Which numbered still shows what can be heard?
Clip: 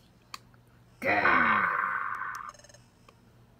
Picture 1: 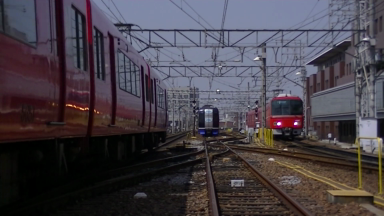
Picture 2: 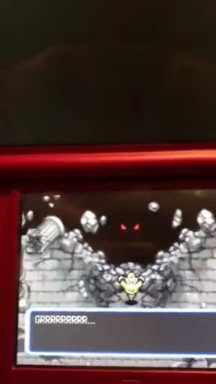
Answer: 2